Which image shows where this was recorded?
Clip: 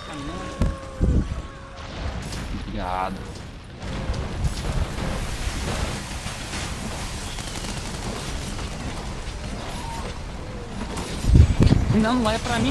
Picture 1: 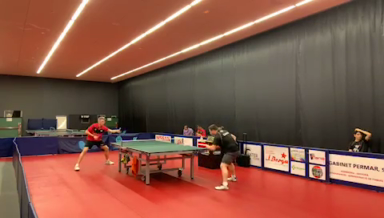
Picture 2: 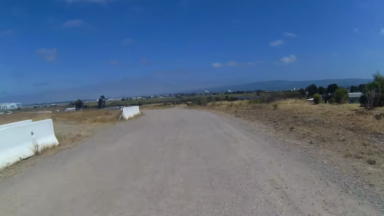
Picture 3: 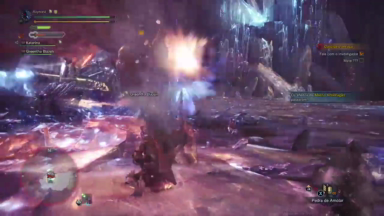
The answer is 3